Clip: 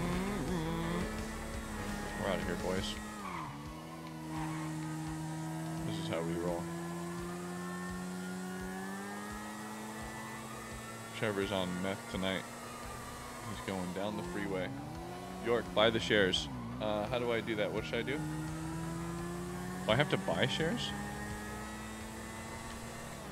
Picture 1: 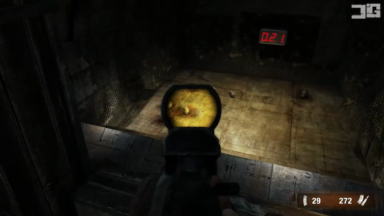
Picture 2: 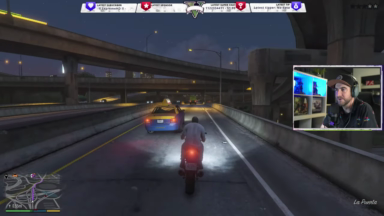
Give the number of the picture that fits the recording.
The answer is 2